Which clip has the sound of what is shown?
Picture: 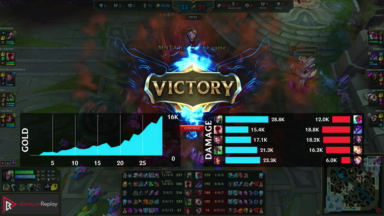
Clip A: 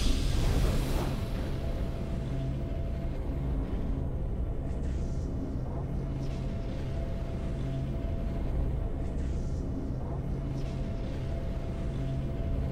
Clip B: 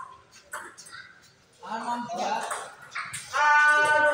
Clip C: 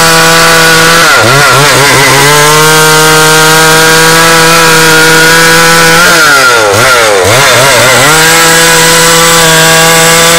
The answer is A